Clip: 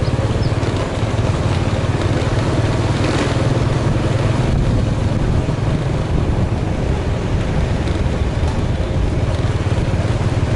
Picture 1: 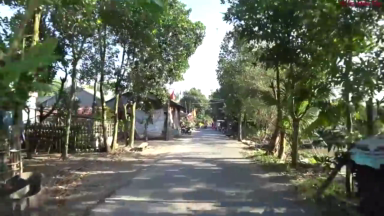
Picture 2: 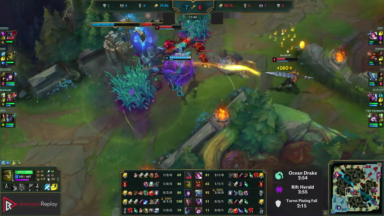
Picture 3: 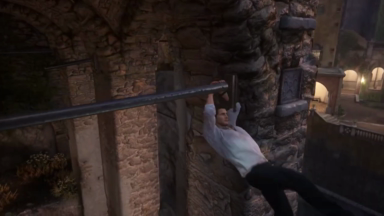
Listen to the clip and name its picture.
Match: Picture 1